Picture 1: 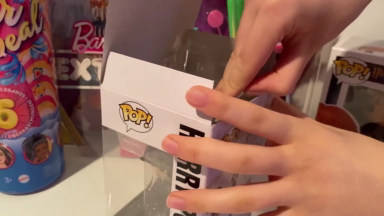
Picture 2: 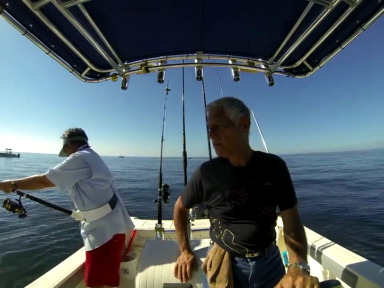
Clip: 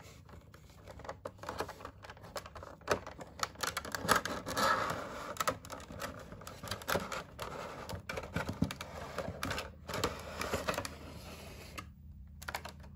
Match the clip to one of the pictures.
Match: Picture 1